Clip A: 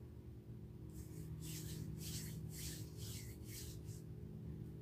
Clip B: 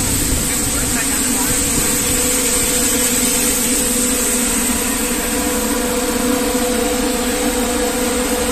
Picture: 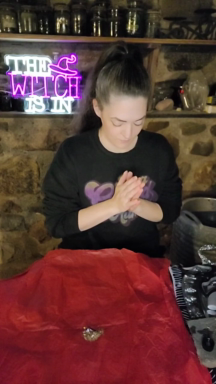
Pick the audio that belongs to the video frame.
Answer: A